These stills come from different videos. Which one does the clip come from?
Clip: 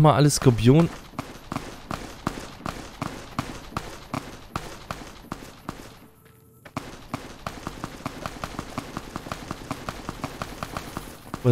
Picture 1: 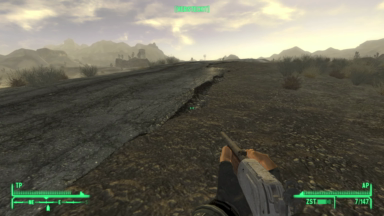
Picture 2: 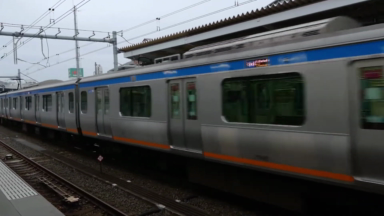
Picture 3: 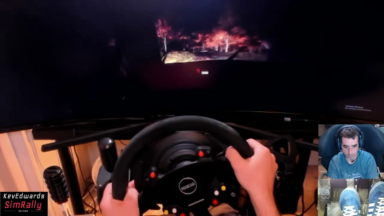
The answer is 1